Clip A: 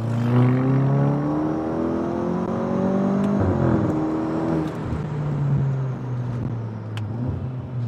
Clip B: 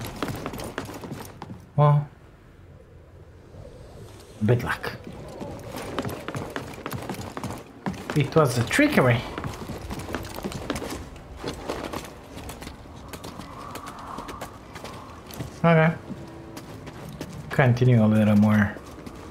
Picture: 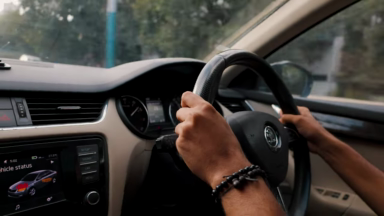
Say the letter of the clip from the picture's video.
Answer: A